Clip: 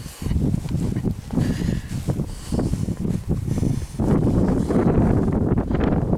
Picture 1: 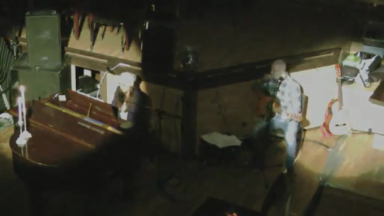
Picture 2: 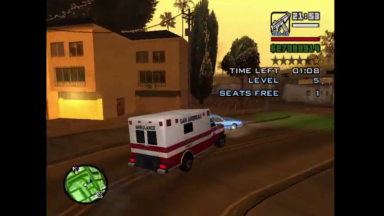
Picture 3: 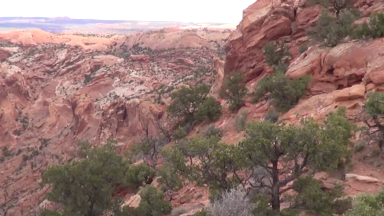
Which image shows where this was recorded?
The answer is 3